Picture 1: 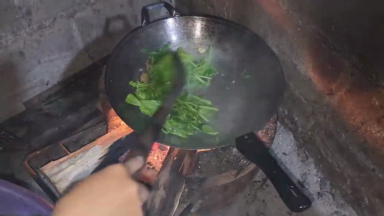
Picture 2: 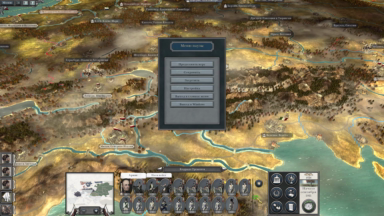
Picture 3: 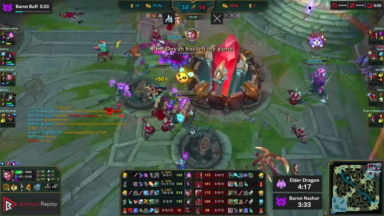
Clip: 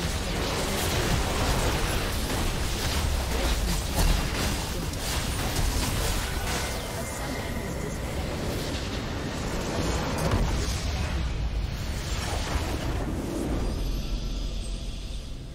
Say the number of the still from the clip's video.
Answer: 3